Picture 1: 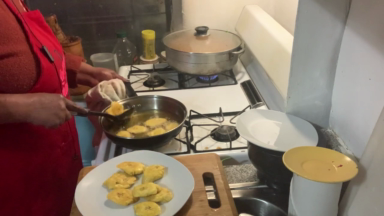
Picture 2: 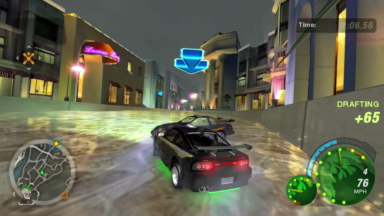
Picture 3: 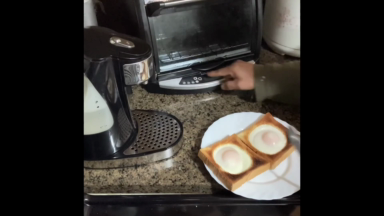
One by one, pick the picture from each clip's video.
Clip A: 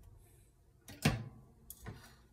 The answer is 3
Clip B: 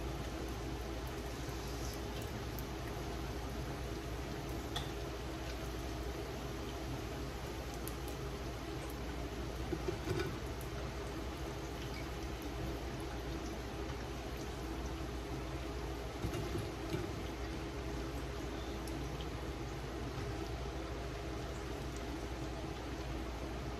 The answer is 1